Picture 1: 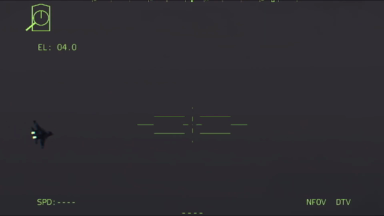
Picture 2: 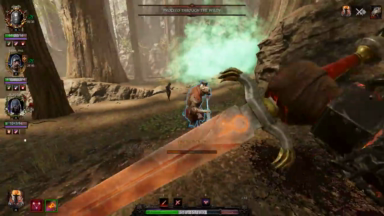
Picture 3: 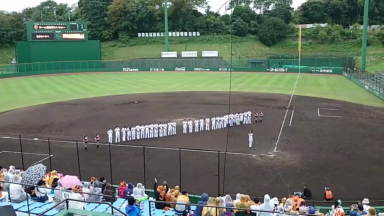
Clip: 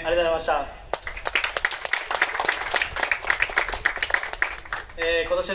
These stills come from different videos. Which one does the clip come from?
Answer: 3